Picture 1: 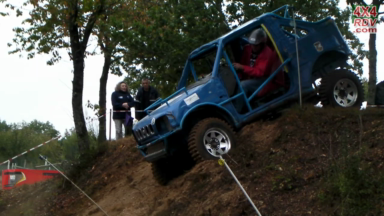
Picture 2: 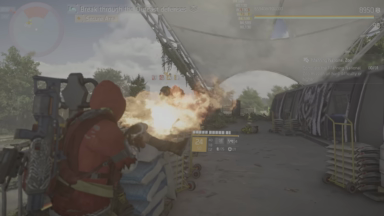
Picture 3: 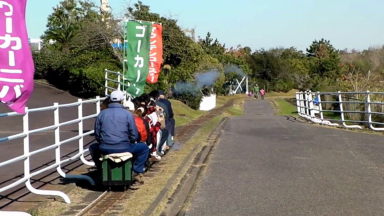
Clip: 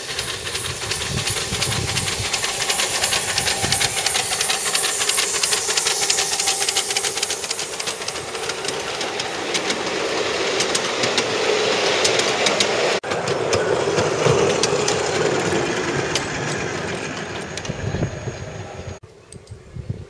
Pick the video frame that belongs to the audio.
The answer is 3